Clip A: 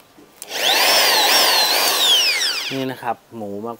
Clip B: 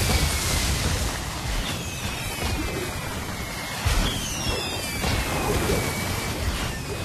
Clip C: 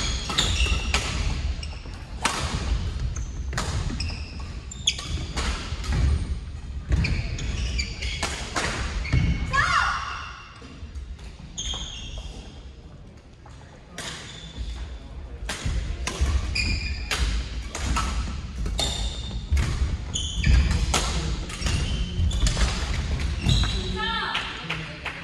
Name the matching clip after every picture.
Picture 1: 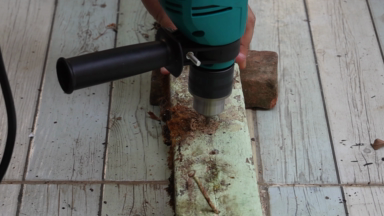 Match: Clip A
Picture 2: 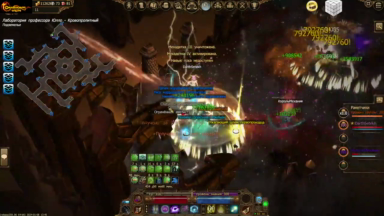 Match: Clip B